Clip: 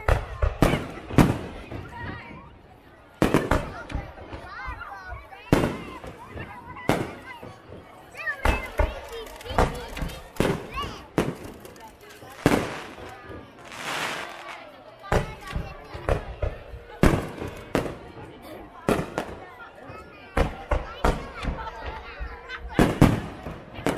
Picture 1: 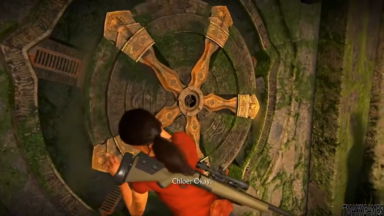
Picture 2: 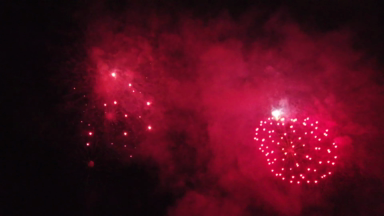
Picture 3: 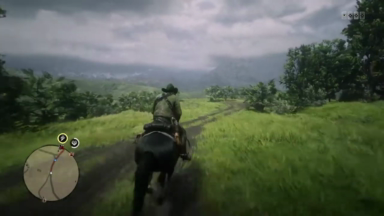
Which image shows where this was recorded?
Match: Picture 2